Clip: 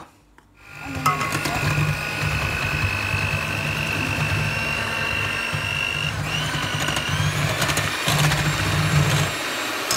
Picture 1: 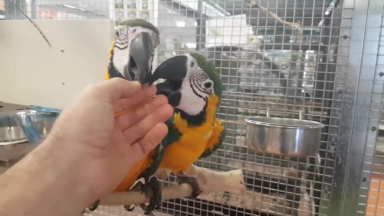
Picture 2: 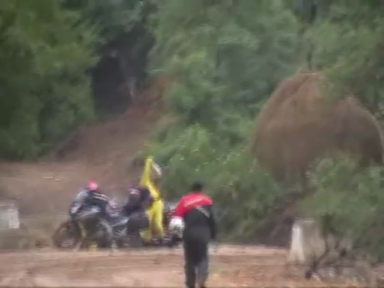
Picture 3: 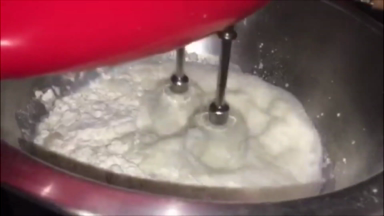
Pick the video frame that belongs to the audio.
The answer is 3